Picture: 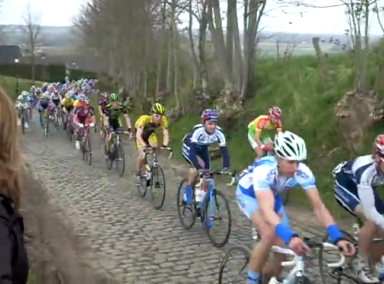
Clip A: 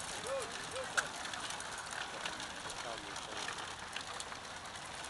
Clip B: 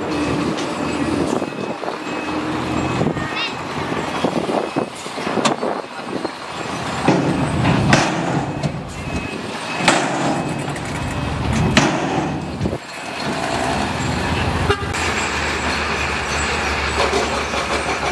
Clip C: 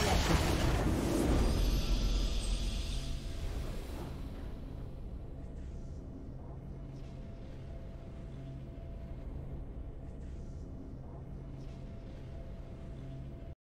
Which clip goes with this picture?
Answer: A